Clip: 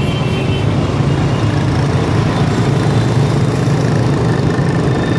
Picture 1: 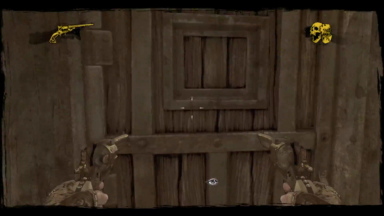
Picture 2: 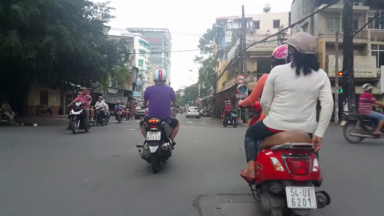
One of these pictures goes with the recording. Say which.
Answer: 2